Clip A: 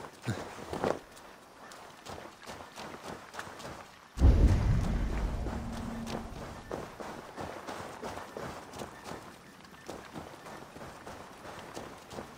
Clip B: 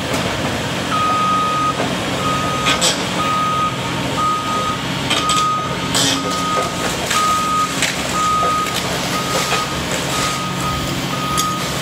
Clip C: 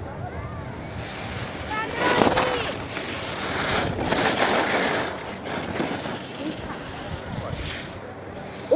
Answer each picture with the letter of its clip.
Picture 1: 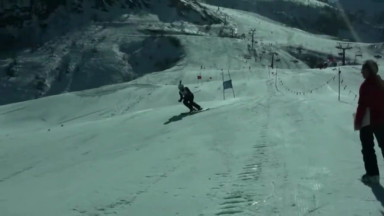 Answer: C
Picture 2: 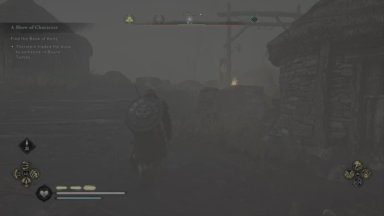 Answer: A